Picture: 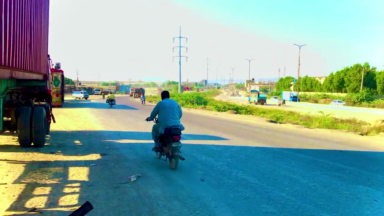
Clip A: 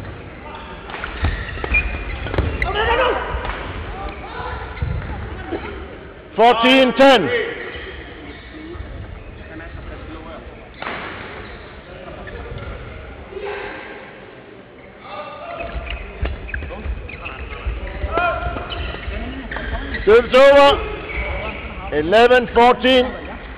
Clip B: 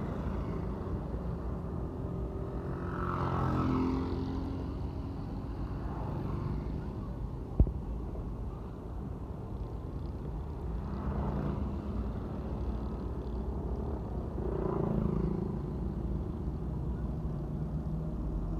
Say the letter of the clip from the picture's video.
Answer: B